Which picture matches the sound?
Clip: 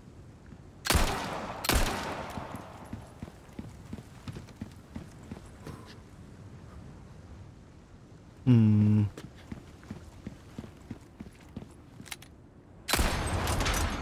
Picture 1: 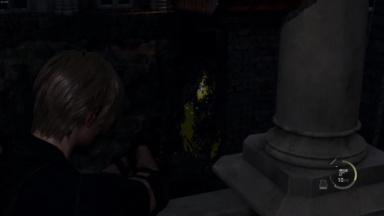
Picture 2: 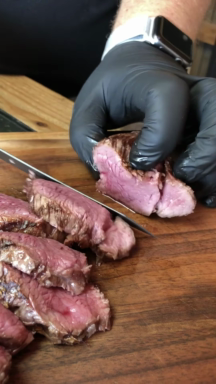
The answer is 1